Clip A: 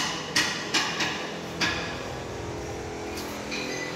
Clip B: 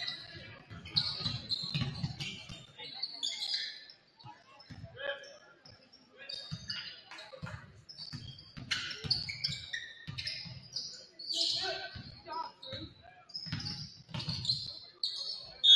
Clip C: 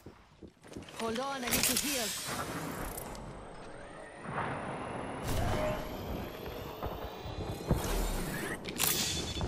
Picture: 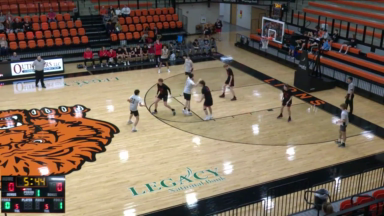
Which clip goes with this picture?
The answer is B